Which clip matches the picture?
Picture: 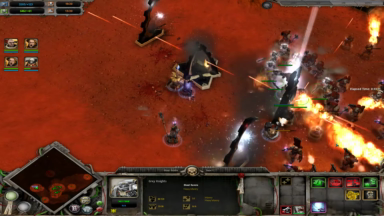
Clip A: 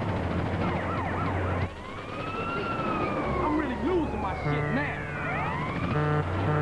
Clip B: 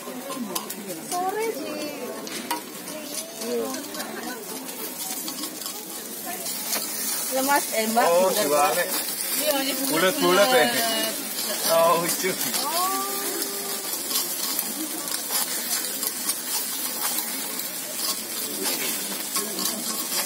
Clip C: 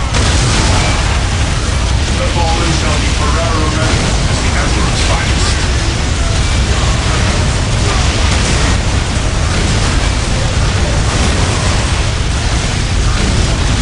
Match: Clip C